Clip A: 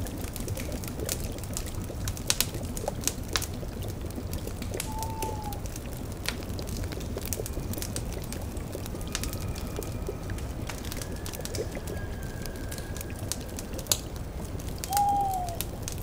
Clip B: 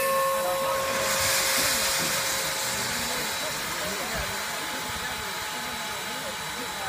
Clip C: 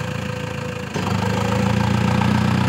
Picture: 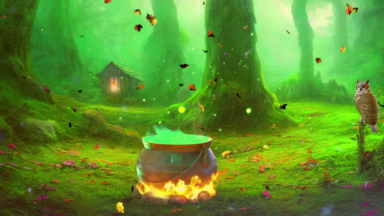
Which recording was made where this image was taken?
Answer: A